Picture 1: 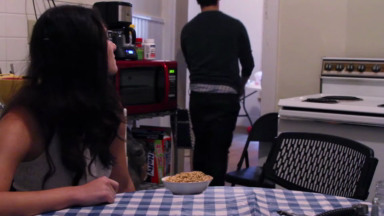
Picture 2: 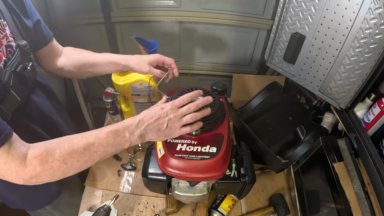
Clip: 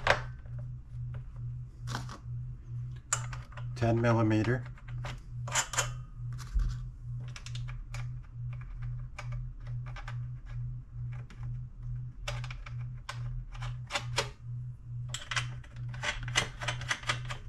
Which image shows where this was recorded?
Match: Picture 2